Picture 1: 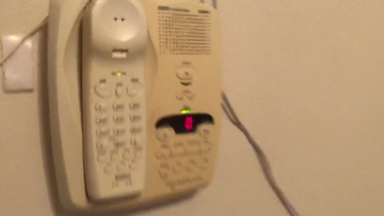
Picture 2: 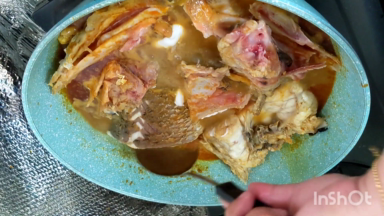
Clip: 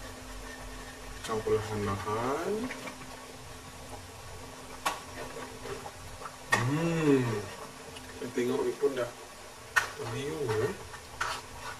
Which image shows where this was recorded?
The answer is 2